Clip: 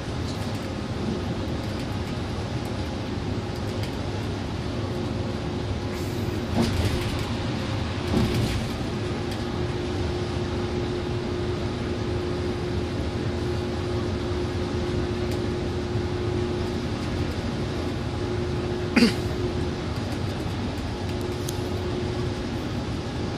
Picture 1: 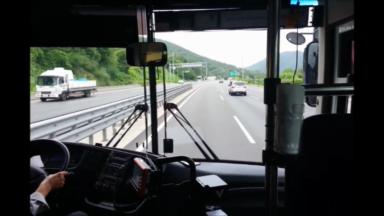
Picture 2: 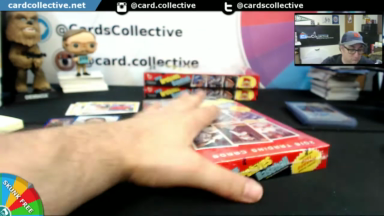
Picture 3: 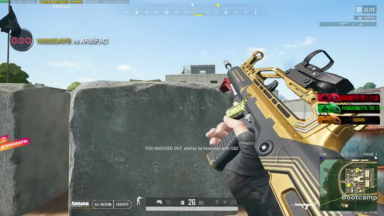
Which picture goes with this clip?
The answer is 1